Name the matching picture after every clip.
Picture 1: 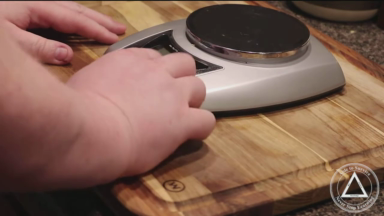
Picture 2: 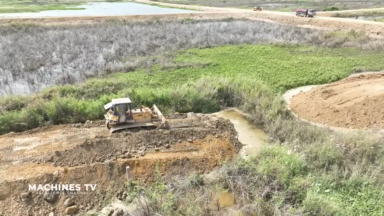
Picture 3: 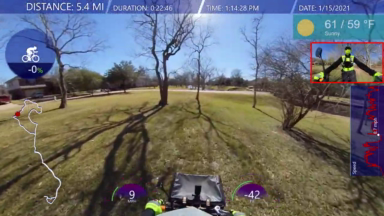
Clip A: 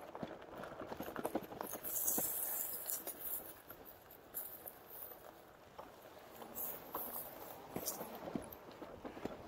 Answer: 3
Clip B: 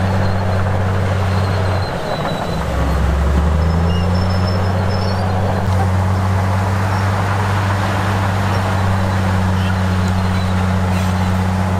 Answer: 2